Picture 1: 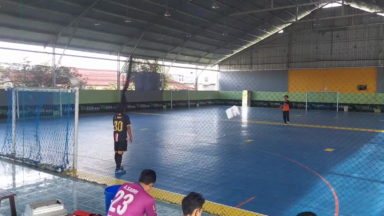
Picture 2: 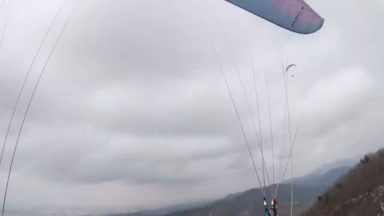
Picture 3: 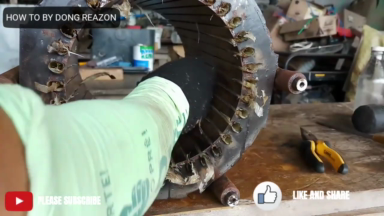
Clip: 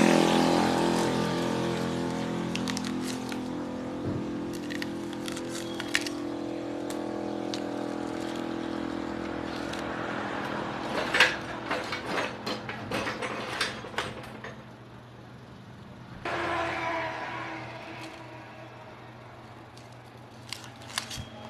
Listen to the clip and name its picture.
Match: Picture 3